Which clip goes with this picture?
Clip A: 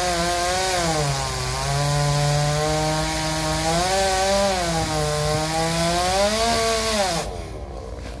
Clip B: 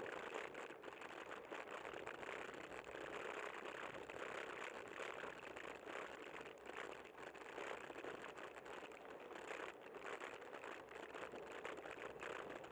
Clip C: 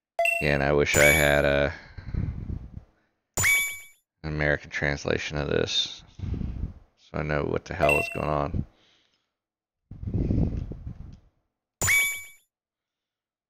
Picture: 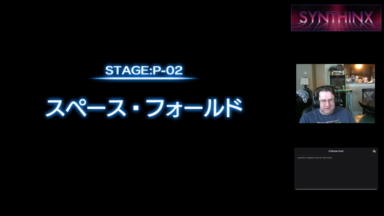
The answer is C